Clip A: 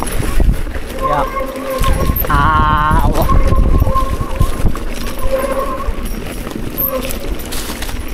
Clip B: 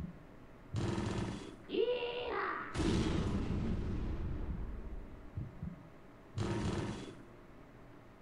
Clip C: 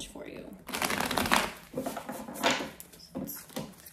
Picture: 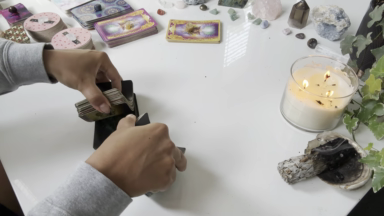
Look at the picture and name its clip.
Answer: C